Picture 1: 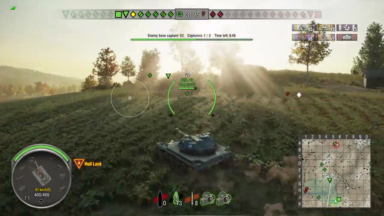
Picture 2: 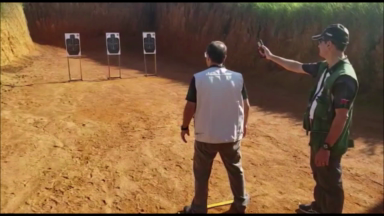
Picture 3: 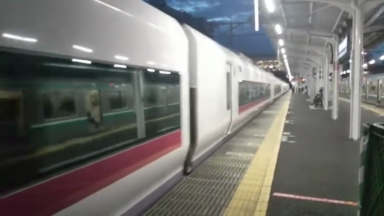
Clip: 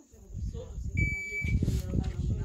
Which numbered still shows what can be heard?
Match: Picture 2